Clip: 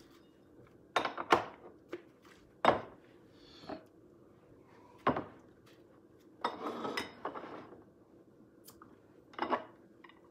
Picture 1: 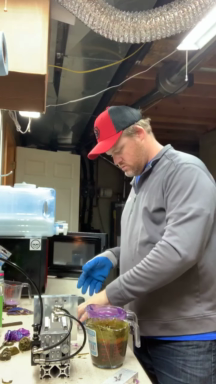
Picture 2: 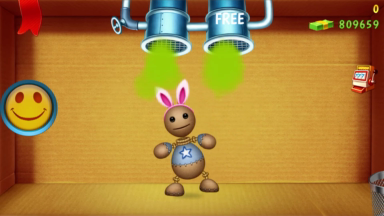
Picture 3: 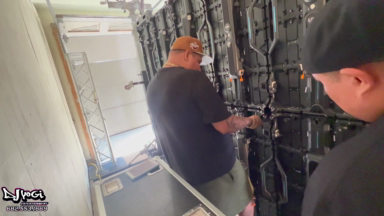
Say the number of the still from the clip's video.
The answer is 1